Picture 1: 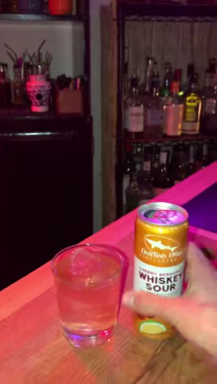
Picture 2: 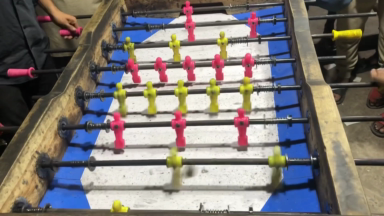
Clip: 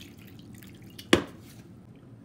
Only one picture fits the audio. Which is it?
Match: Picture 1